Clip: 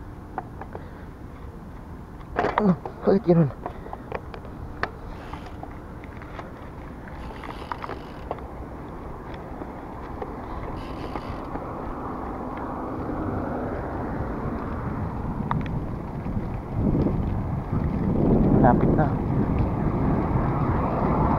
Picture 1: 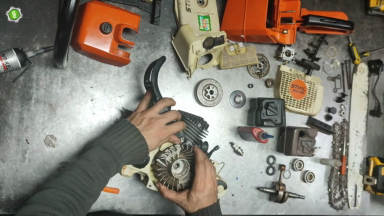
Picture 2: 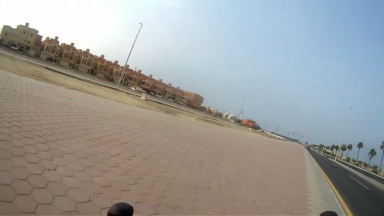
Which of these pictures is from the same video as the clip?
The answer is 2